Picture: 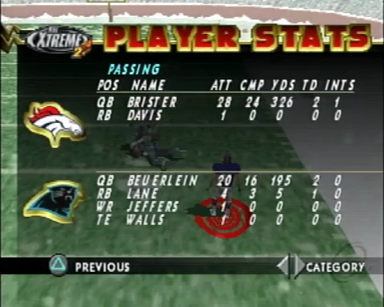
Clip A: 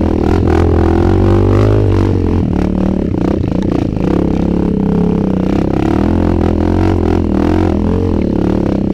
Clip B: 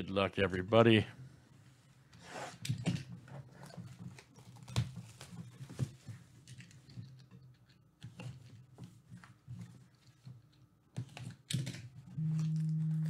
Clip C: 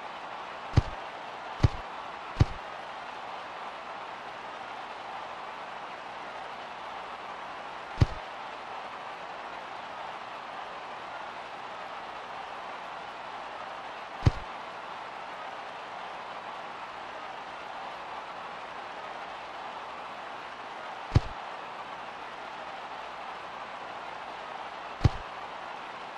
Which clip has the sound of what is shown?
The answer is C